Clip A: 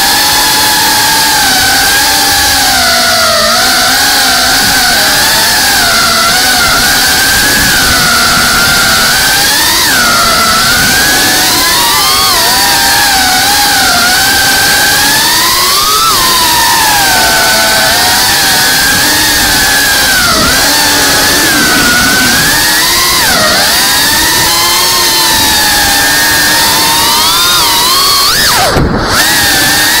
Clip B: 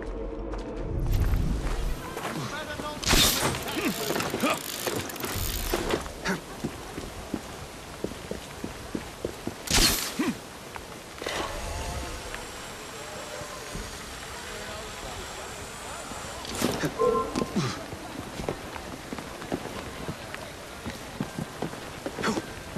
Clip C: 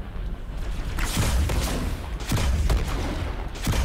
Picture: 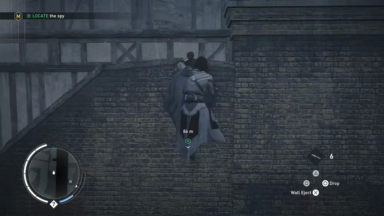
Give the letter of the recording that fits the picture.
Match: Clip B